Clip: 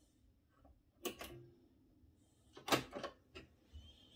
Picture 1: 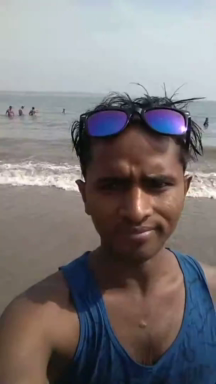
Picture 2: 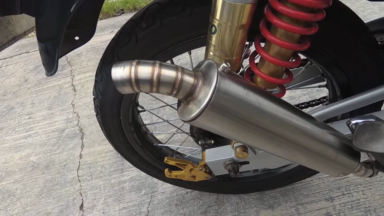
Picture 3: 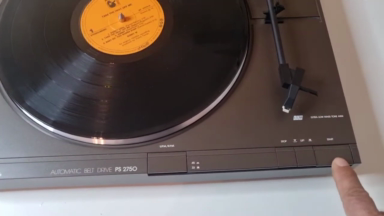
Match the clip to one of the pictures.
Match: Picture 3